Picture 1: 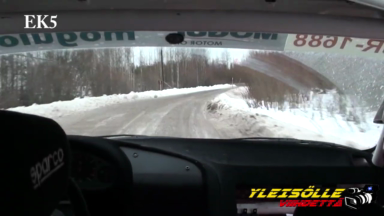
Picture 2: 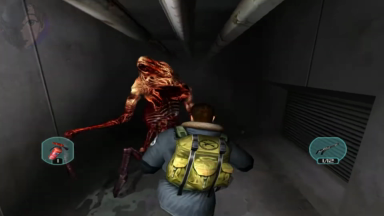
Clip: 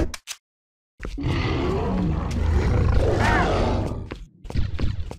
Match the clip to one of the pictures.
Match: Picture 2